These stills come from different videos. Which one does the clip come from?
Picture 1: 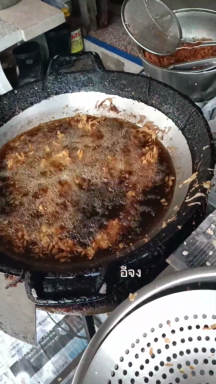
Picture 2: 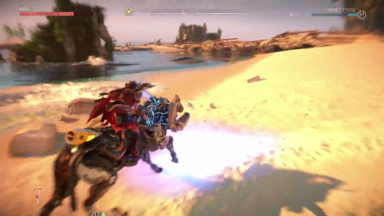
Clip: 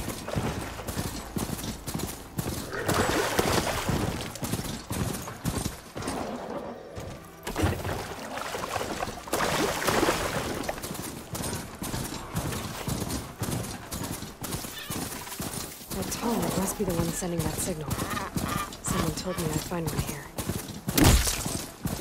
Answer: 2